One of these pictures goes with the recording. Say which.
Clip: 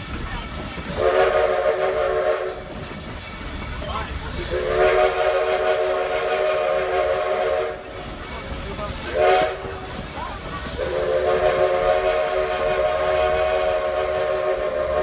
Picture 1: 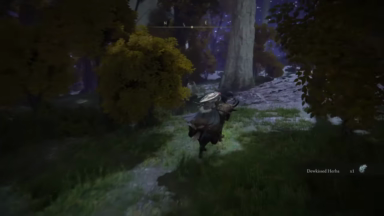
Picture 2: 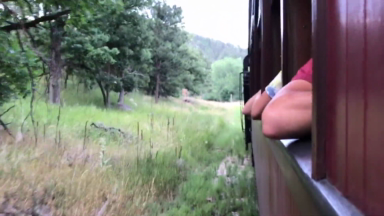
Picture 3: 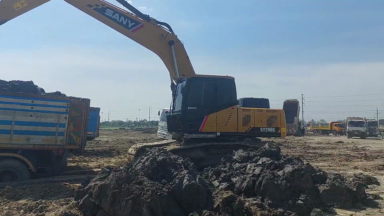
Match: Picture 2